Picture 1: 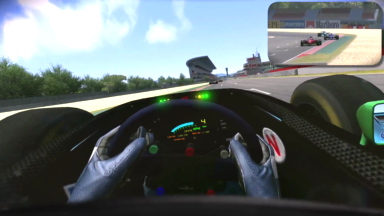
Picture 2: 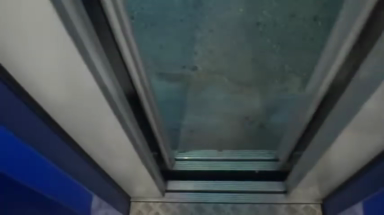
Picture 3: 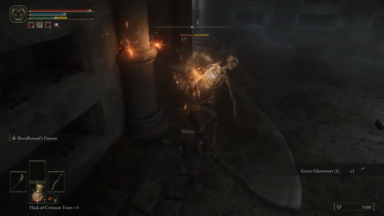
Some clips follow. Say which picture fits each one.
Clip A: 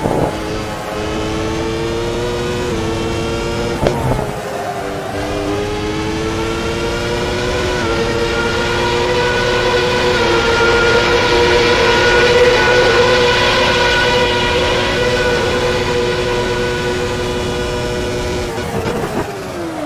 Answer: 1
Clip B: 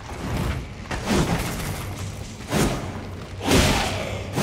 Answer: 3